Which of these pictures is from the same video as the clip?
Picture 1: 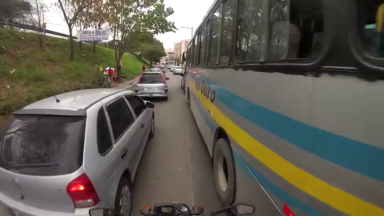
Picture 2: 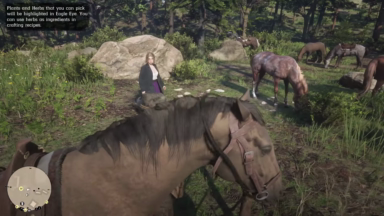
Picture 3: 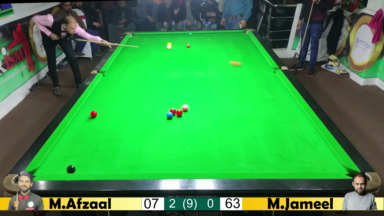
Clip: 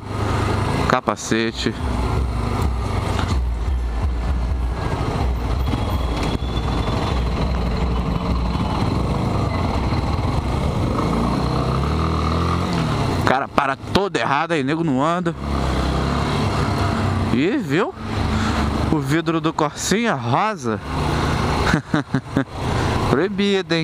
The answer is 1